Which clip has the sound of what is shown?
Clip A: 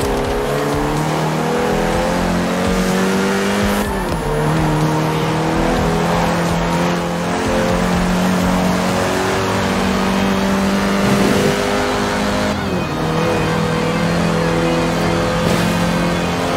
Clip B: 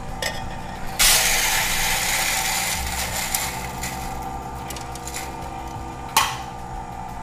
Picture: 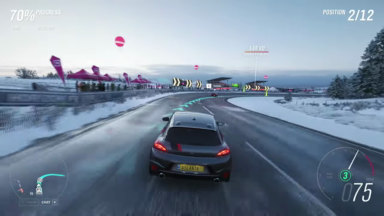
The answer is A